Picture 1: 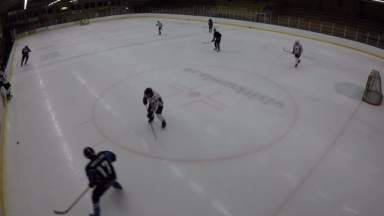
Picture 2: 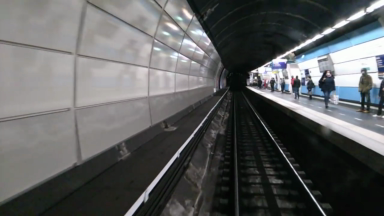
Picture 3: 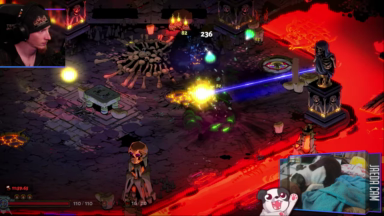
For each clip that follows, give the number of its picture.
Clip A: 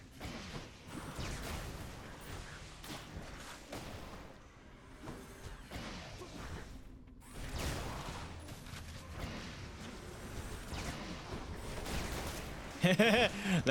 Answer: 3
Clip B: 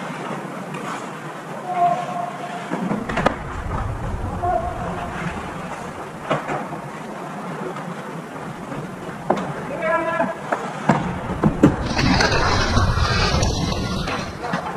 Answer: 1